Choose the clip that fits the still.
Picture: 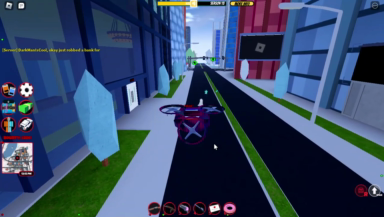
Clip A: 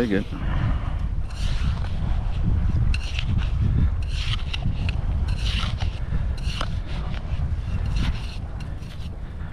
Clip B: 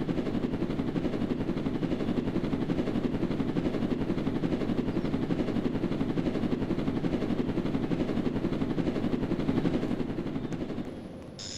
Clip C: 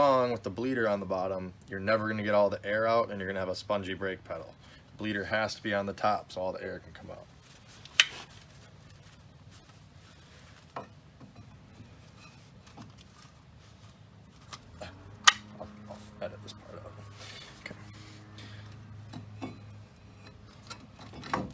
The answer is B